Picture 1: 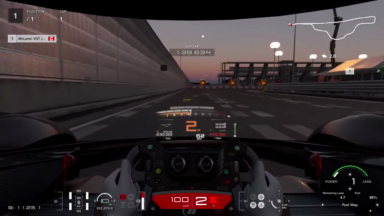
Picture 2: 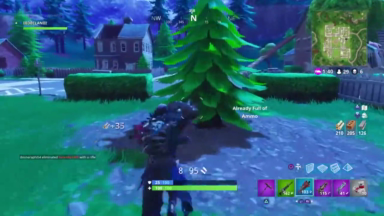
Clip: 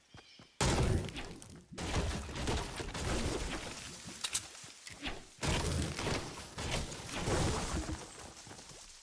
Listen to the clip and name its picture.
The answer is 2